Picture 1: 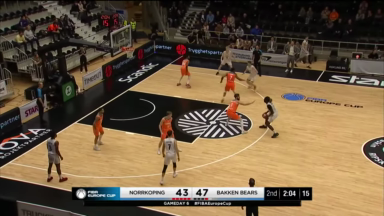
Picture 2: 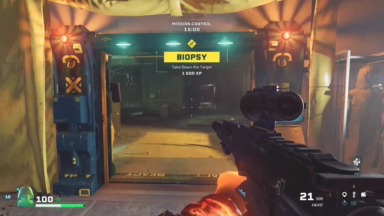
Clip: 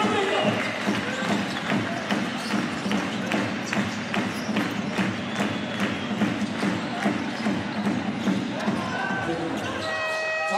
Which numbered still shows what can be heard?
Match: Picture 1